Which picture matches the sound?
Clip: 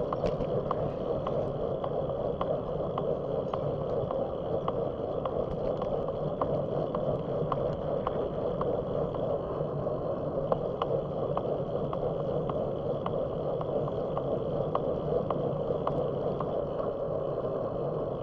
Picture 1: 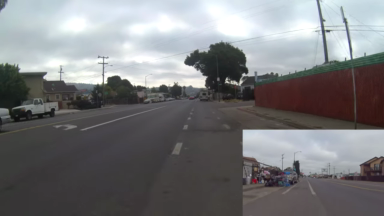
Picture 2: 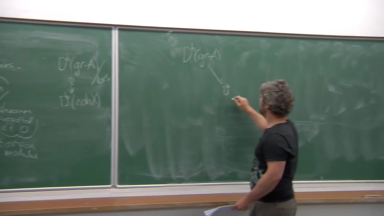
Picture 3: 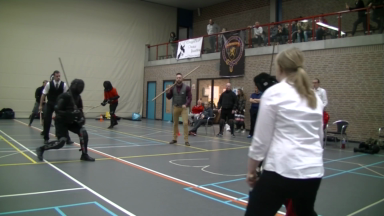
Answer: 1